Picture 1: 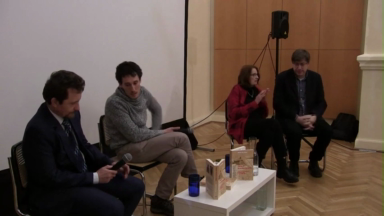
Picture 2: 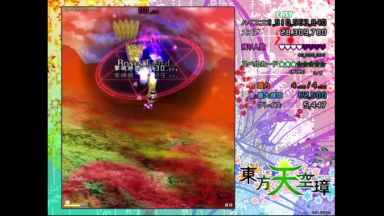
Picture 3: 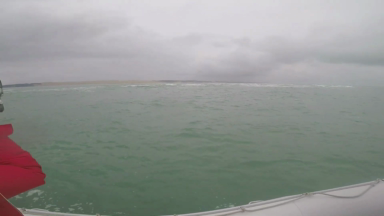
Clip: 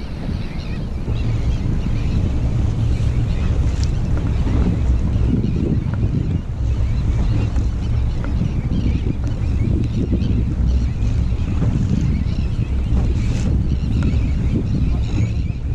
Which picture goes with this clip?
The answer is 3